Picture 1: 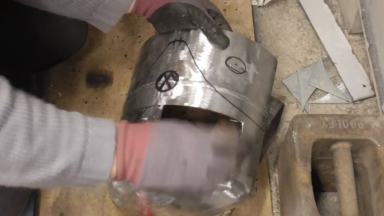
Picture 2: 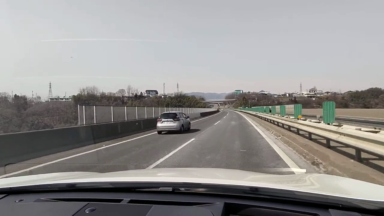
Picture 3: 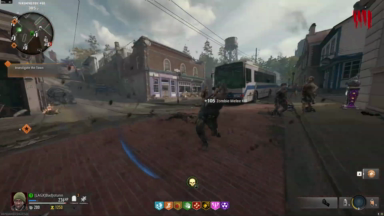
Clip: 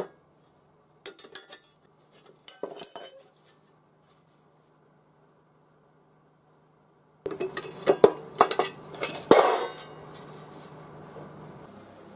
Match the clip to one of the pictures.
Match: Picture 1